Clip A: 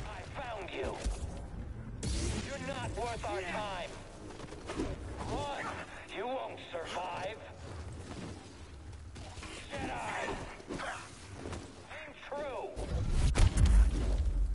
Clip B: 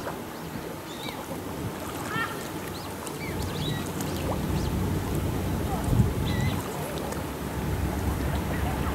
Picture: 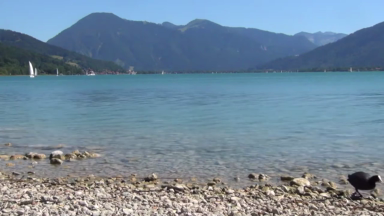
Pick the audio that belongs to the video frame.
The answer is B